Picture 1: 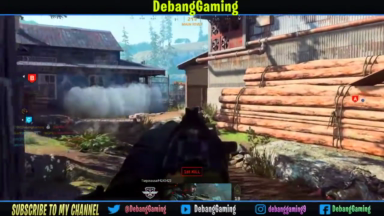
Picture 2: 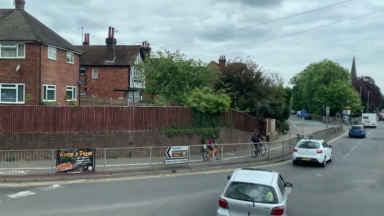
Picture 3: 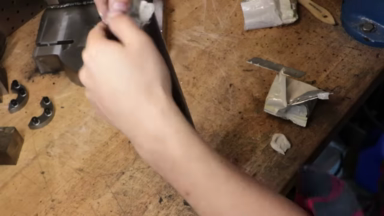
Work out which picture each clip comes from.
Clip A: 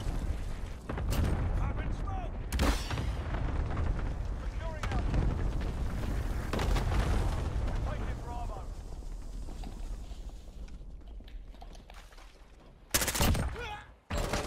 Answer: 1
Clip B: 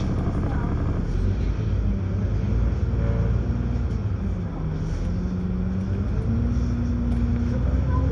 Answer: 2